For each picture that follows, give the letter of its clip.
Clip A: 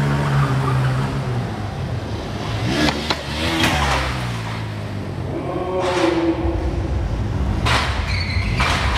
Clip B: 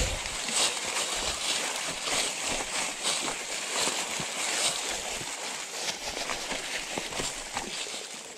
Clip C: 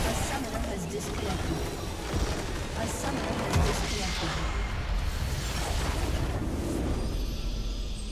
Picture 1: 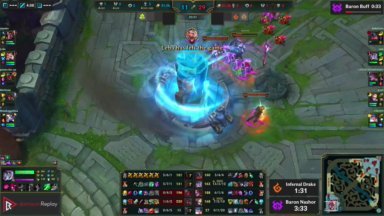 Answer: C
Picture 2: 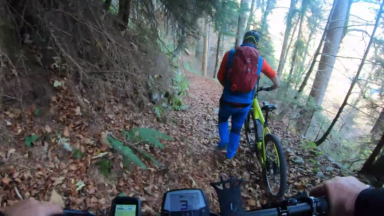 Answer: B